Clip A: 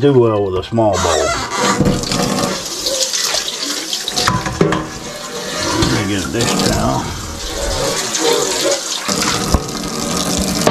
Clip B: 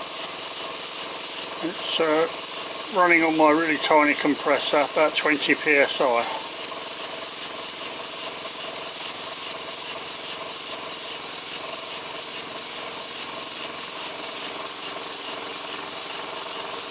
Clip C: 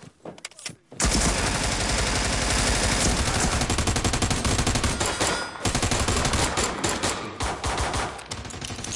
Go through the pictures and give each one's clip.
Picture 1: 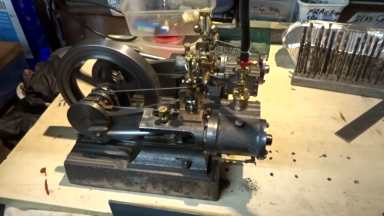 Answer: B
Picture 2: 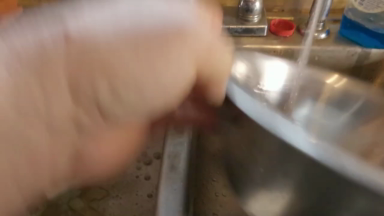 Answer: A